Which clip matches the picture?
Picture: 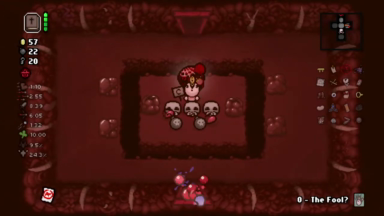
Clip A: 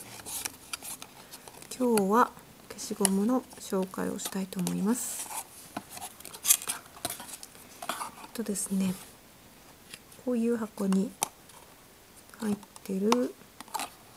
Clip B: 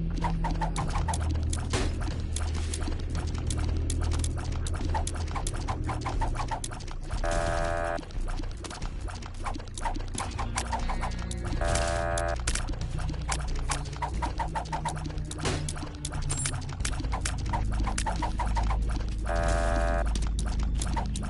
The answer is B